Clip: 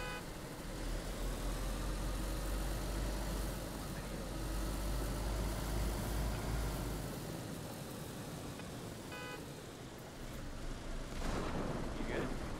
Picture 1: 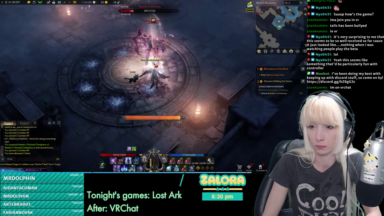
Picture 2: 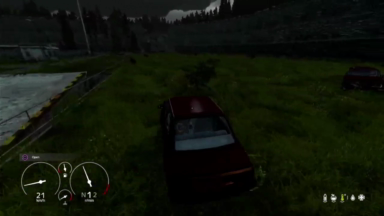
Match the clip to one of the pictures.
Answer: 2